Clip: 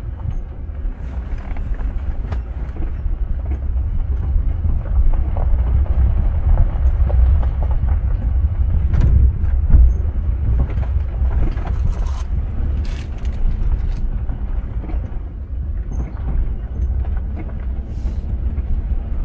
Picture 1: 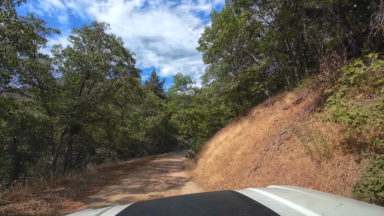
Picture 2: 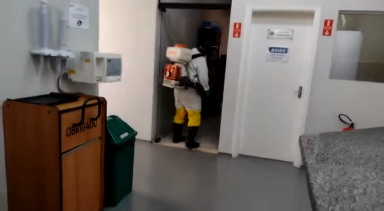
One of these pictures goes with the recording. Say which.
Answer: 1